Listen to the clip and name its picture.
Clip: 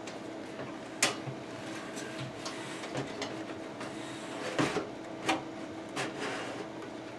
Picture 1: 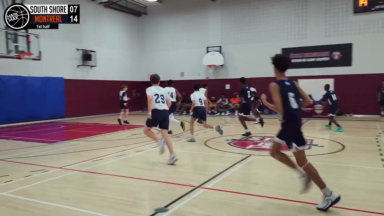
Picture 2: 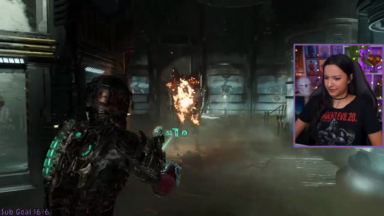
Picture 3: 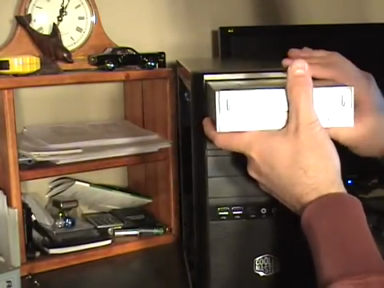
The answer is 3